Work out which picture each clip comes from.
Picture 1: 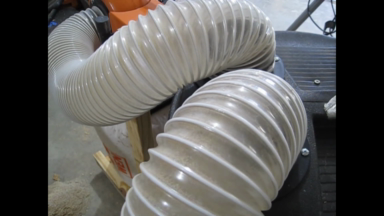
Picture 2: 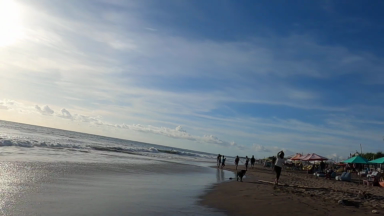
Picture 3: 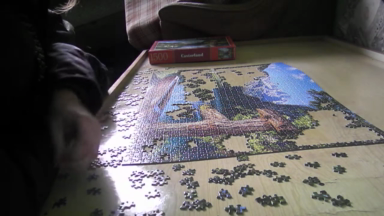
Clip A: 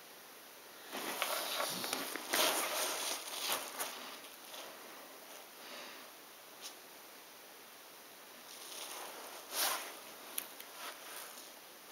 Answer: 3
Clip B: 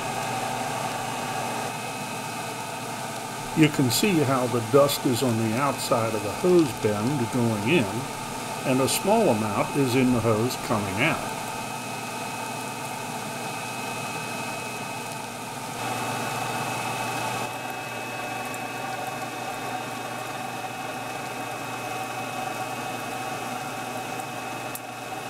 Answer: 1